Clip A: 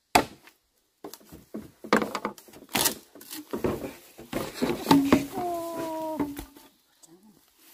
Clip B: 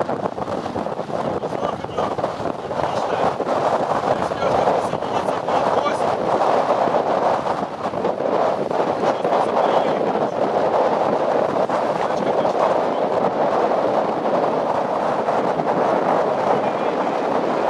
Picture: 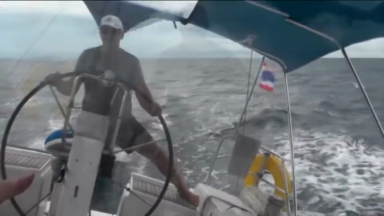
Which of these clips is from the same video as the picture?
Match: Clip B